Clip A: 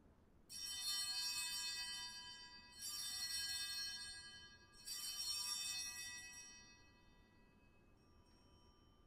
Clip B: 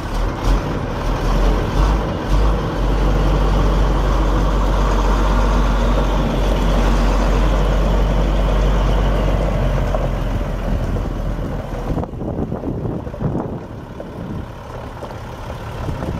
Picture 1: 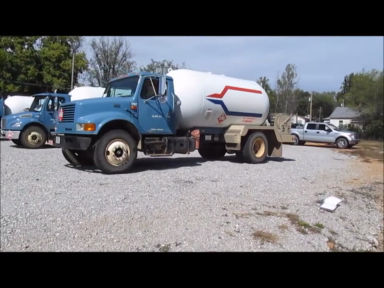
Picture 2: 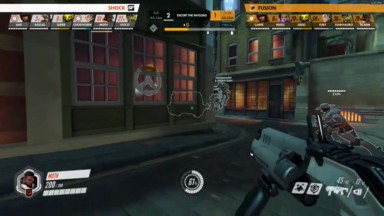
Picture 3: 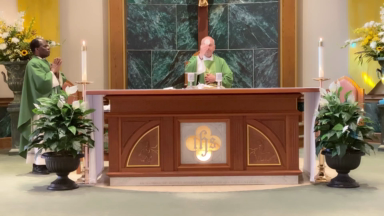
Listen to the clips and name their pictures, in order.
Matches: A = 3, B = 1